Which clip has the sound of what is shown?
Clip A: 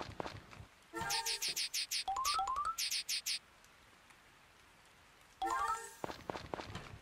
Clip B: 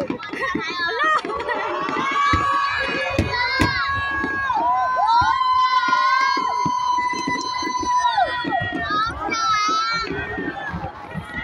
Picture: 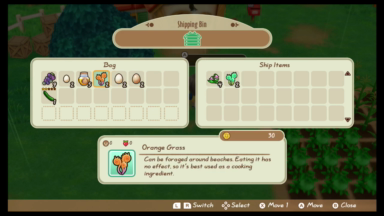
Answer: A